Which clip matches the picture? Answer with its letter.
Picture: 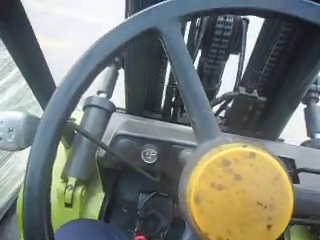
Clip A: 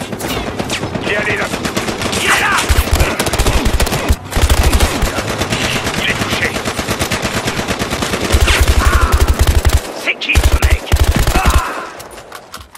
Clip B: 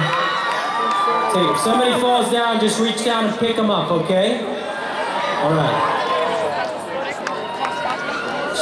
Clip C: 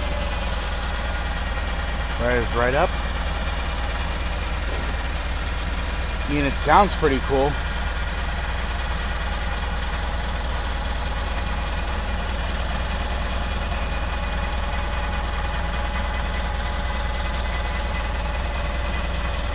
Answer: C